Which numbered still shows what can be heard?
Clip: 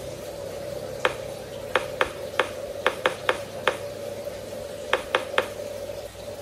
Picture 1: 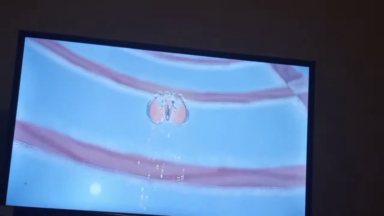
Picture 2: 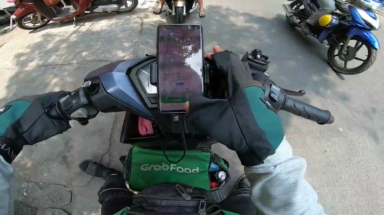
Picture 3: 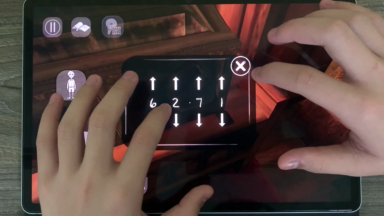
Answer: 3